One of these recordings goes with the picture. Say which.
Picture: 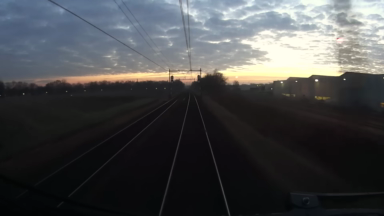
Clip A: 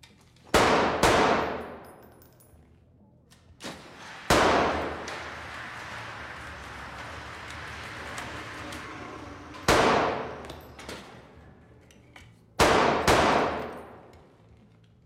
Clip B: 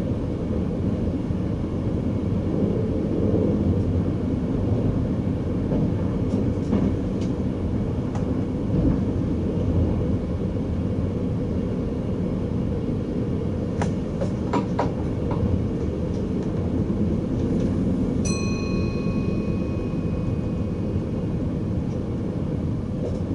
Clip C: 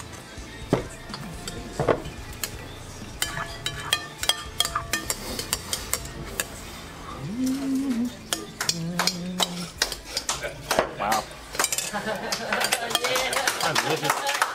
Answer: B